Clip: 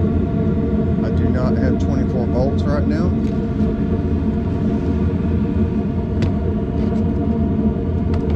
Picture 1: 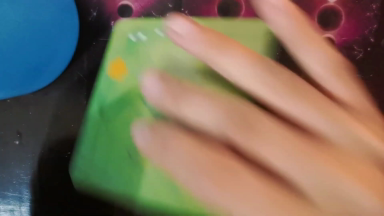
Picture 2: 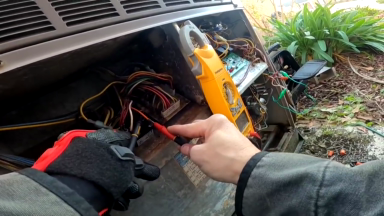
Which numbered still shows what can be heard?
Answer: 2